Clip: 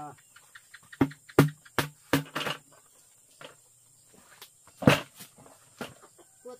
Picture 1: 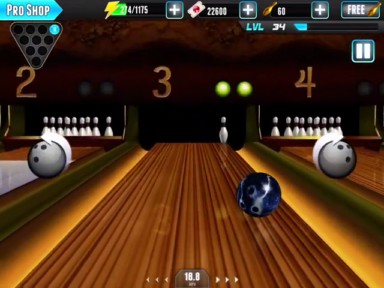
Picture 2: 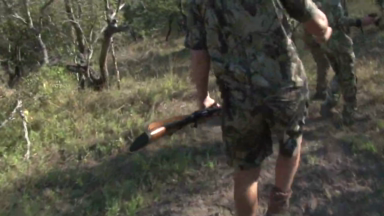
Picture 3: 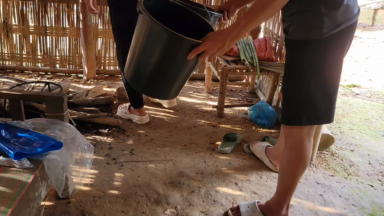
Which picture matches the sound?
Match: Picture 3